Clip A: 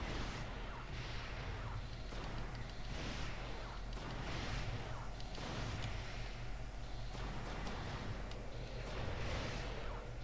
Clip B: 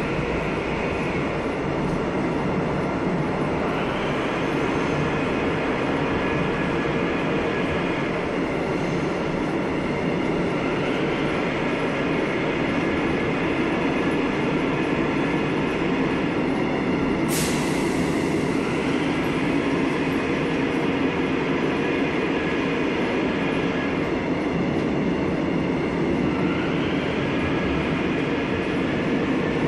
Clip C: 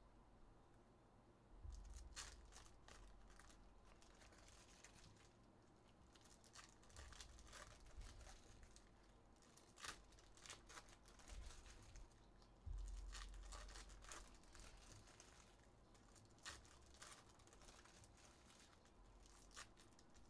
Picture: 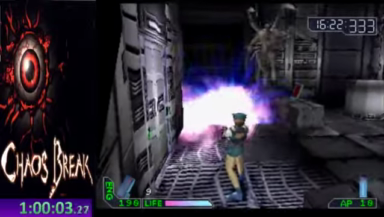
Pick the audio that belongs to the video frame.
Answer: A